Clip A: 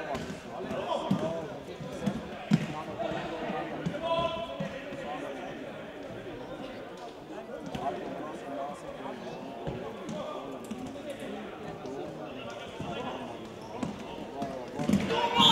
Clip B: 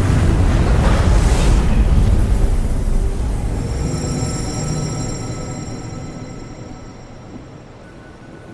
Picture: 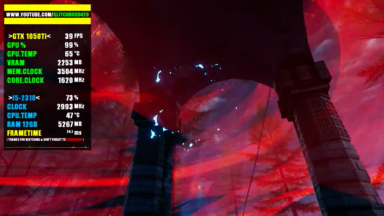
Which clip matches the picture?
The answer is B